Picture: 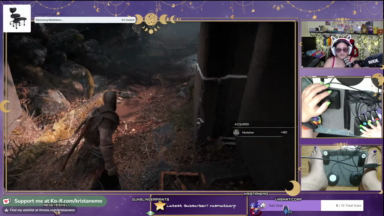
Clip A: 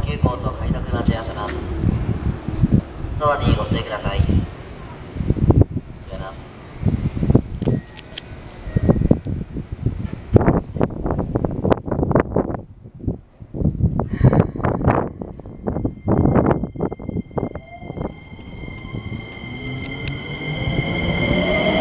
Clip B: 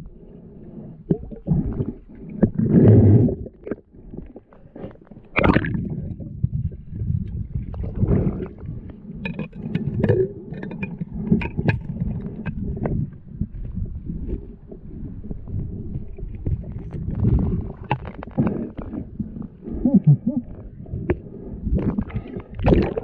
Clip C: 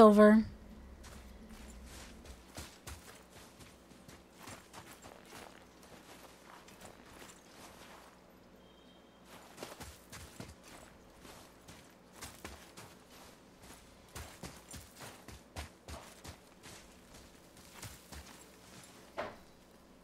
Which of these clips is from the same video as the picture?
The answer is C